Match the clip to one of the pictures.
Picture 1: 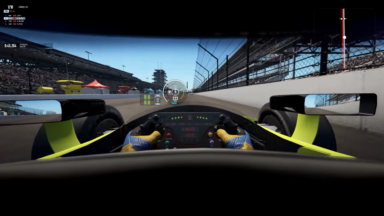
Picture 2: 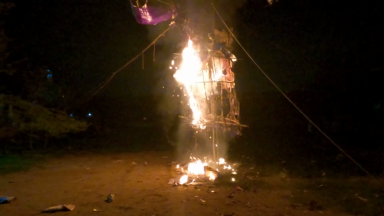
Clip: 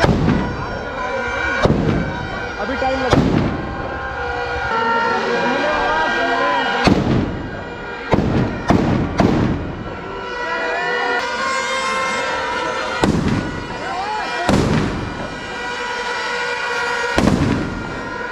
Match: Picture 2